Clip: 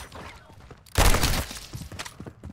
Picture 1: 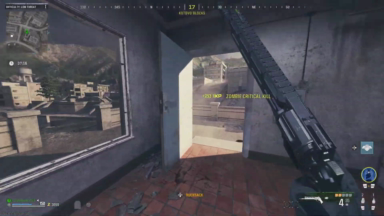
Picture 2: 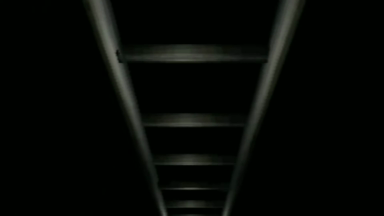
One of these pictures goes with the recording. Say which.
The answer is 1